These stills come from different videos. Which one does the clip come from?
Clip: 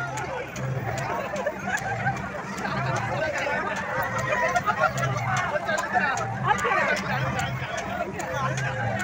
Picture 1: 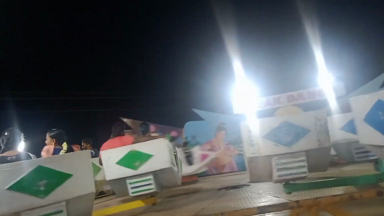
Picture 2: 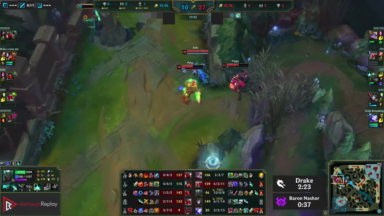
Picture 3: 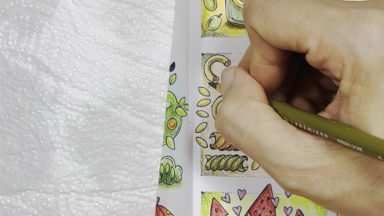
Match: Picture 1